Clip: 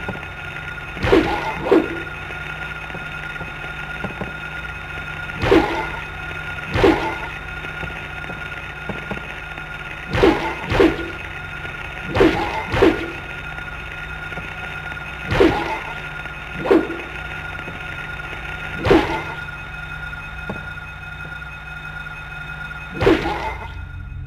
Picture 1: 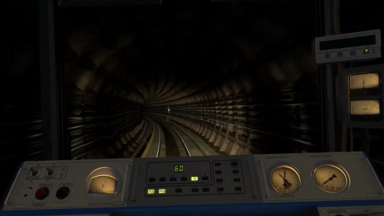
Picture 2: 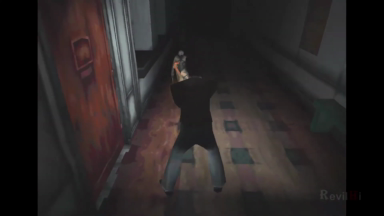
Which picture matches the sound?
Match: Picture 2